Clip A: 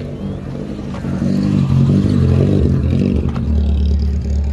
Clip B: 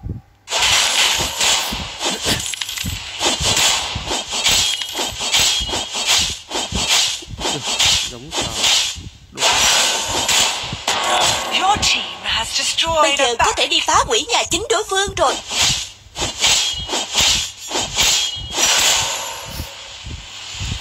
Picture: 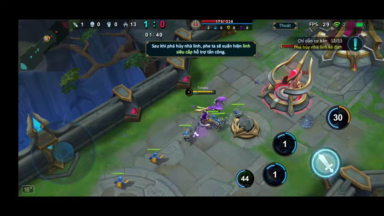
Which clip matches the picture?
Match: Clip B